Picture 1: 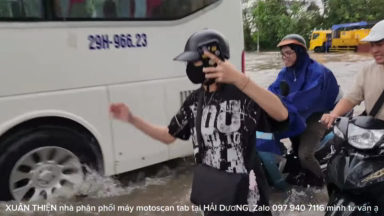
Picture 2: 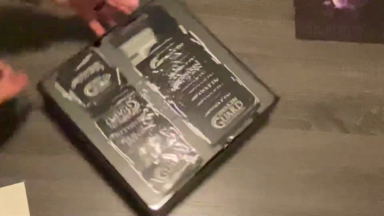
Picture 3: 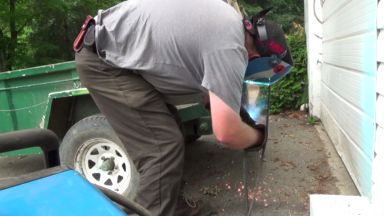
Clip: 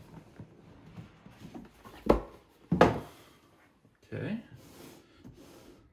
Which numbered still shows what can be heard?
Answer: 2